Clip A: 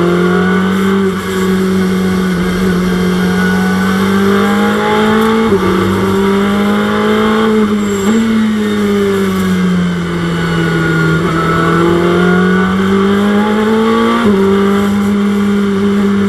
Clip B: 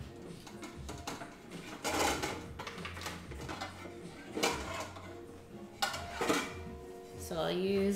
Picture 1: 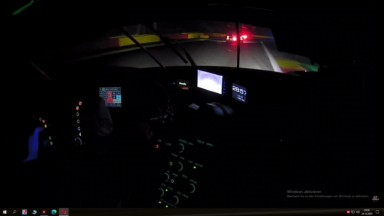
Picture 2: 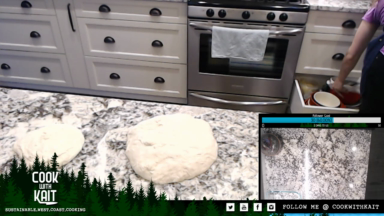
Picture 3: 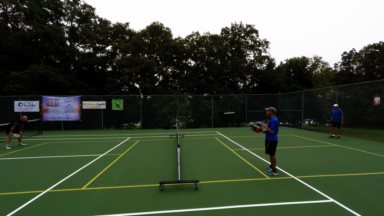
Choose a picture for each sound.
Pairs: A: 1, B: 2